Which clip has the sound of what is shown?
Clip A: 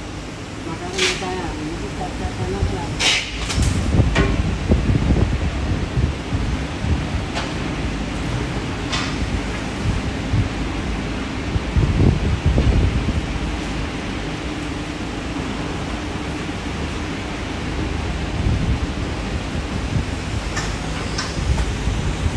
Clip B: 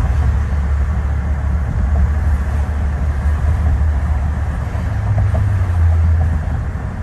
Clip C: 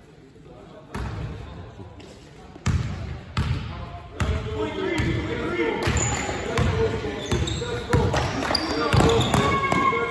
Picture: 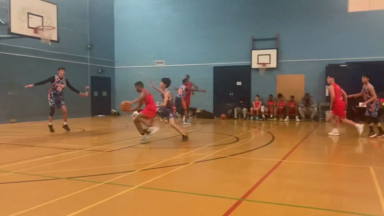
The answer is C